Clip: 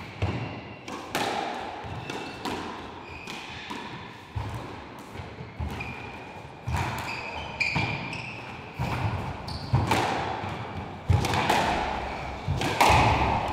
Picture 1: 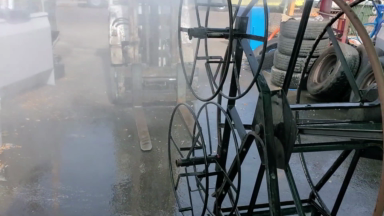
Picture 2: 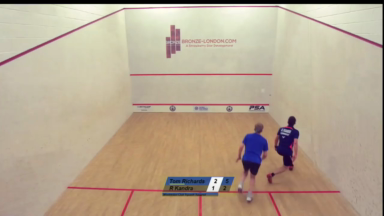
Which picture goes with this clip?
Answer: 2